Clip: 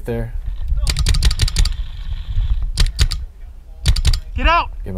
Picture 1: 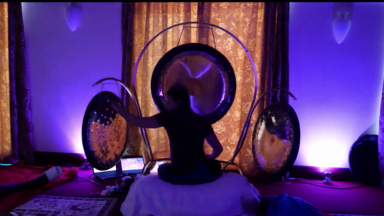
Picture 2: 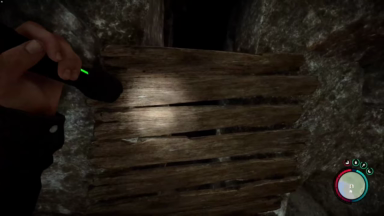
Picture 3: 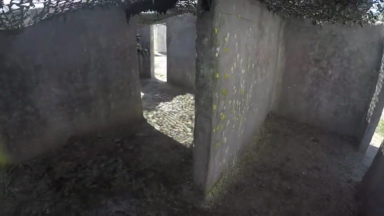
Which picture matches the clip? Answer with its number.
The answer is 3